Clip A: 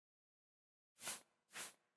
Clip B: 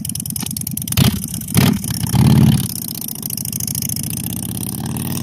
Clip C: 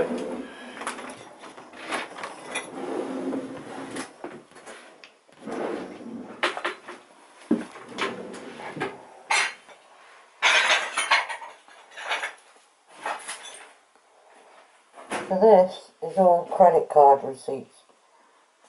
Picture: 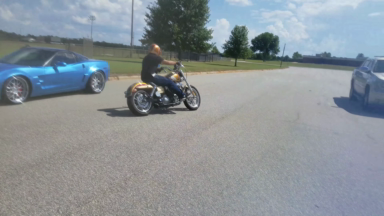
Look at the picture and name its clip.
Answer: B